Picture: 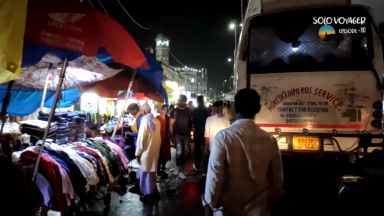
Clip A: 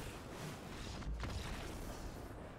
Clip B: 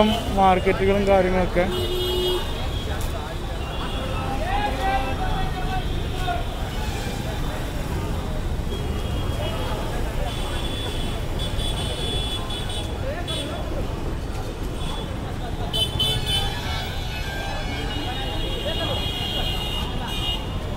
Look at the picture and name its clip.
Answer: B